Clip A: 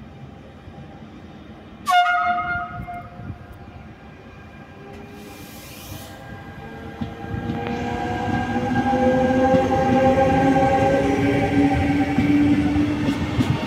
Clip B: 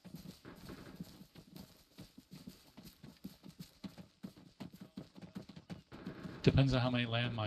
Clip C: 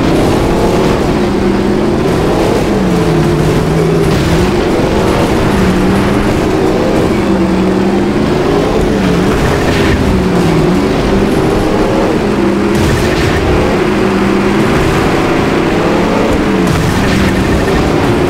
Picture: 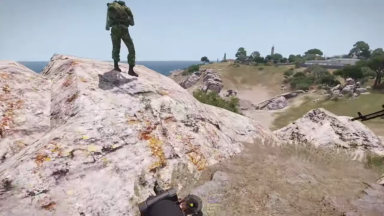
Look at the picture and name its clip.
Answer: B